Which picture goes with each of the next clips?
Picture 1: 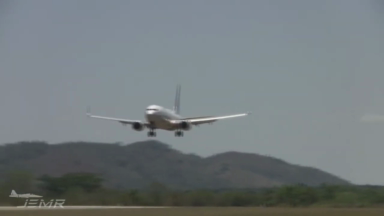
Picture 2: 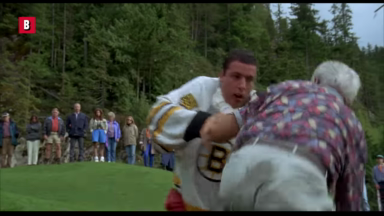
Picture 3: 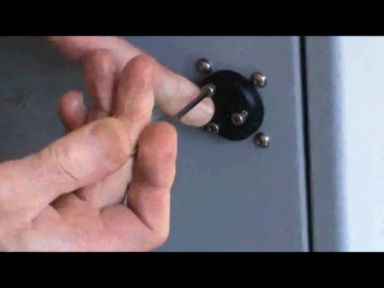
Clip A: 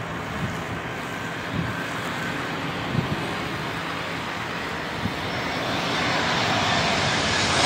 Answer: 1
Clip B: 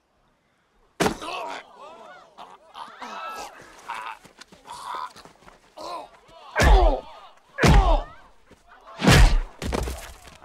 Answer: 2